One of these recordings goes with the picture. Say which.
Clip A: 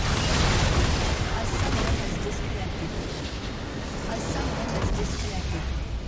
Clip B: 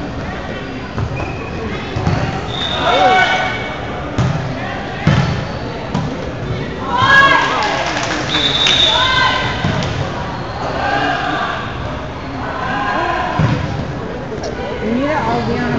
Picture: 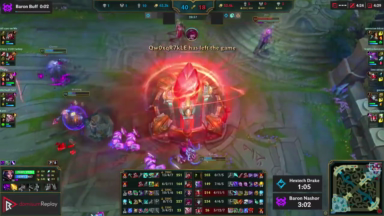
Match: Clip A